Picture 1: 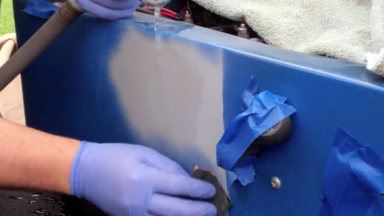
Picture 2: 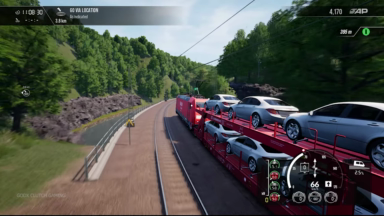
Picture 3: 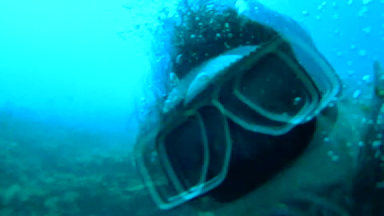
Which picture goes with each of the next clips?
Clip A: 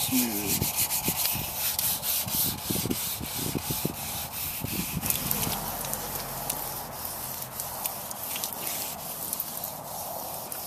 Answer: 1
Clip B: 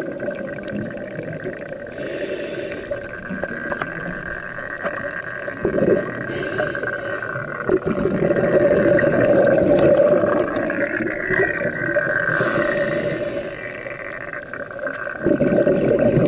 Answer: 3